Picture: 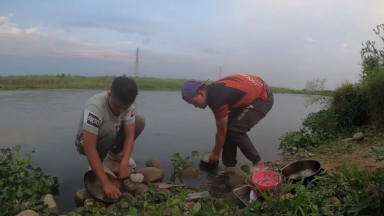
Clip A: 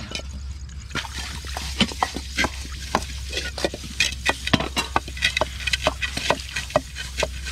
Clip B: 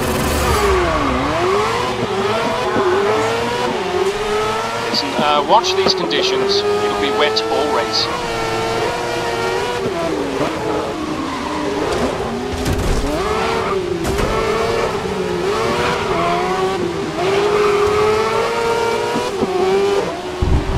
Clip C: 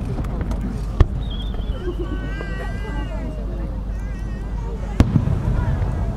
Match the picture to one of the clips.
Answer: A